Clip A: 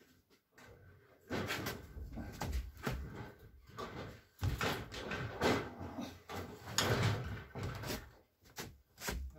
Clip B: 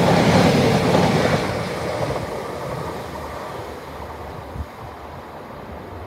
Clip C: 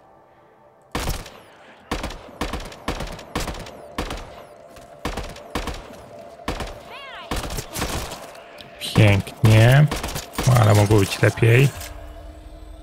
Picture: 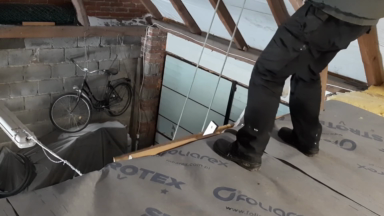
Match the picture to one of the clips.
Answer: A